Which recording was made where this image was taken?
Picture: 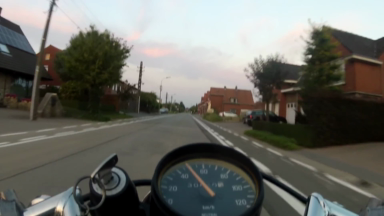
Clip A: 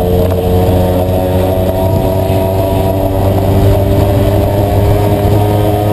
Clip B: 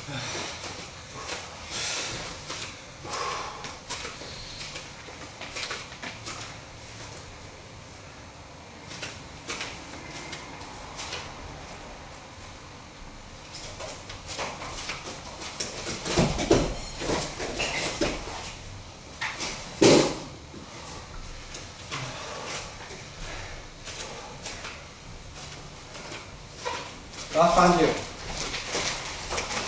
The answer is A